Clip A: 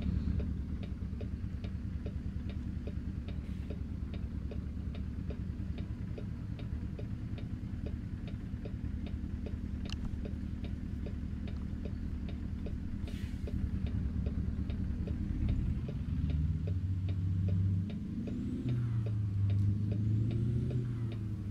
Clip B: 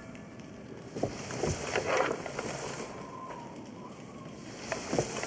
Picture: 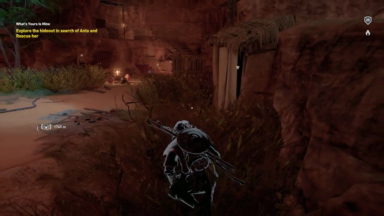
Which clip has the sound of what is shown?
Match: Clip B